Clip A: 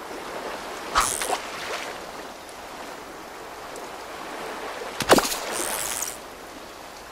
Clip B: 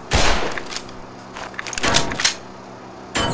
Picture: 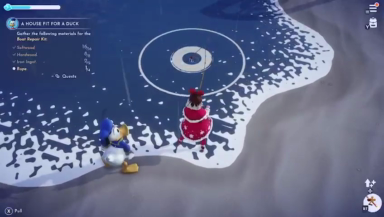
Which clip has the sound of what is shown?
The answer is A